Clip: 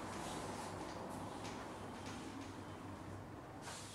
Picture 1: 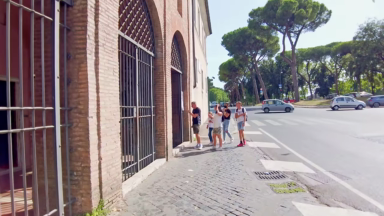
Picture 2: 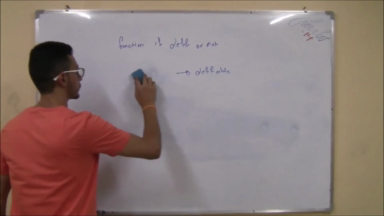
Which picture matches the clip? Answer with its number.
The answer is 2